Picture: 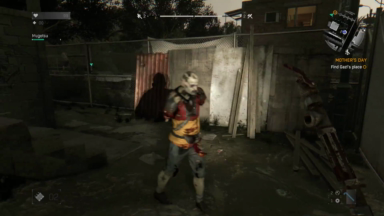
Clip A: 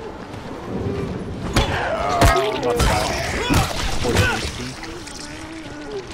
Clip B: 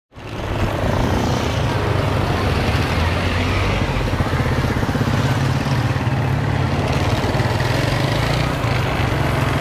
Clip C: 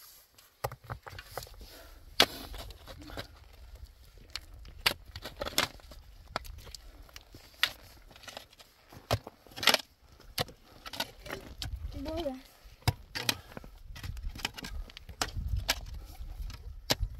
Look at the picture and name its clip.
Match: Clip A